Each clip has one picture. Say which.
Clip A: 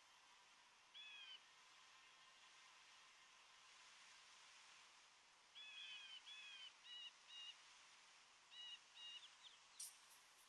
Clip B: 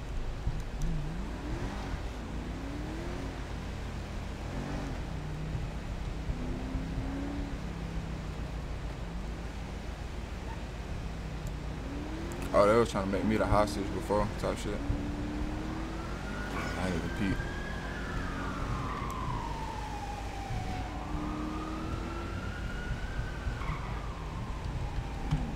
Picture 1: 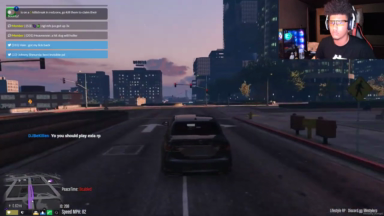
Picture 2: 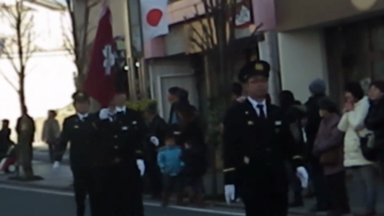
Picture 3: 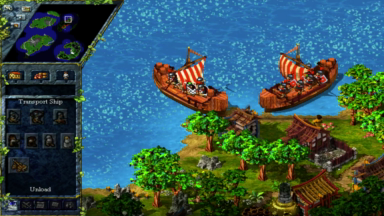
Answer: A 3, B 1